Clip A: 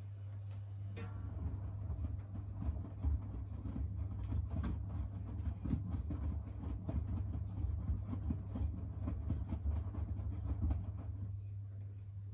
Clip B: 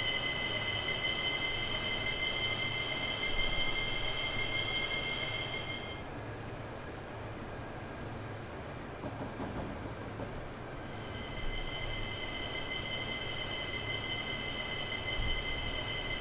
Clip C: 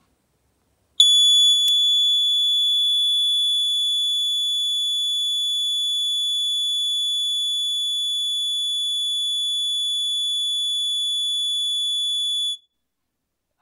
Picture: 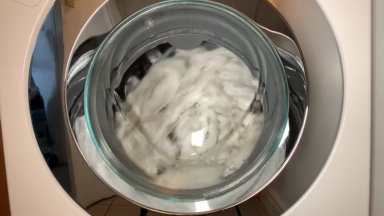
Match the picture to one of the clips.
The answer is A